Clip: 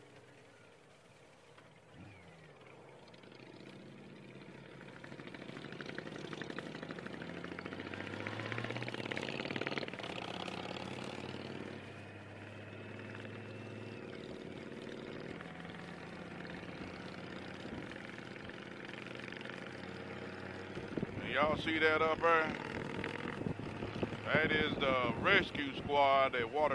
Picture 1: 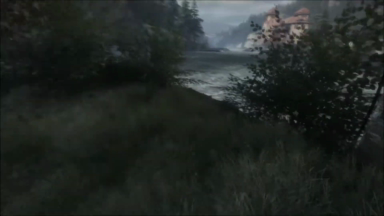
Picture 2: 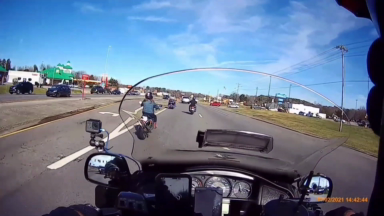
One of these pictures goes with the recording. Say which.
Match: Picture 2